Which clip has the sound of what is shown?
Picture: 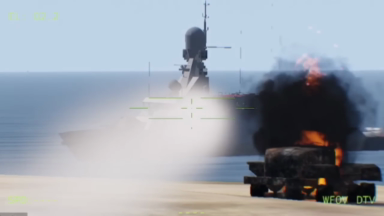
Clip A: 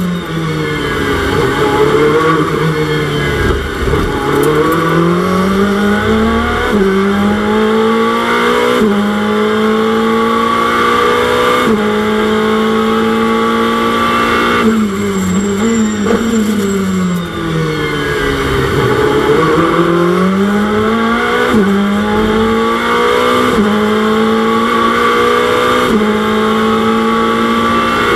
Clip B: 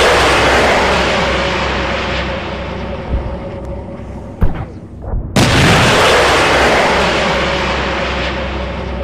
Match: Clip B